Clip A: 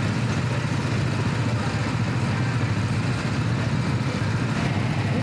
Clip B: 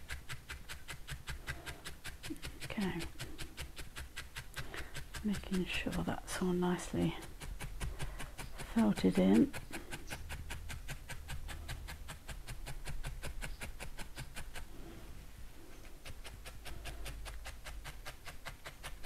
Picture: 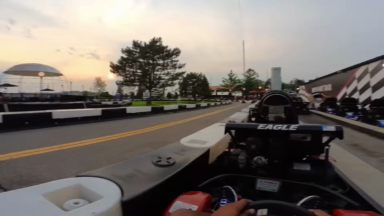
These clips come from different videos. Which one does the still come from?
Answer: A